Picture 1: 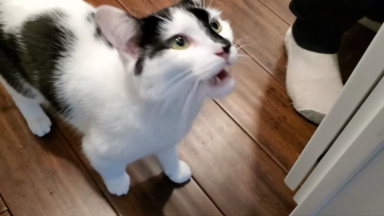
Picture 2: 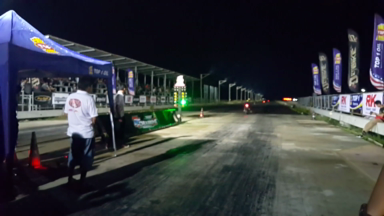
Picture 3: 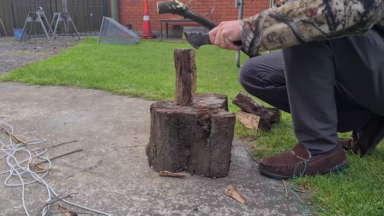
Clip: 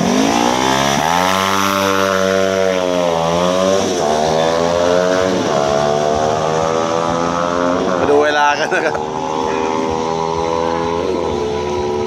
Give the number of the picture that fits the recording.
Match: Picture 2